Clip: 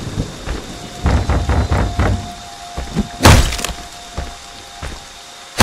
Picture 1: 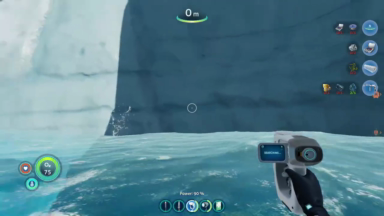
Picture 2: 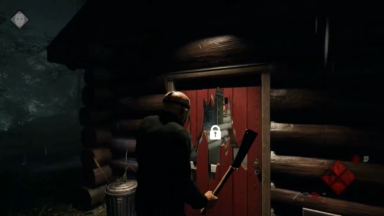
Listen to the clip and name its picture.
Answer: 2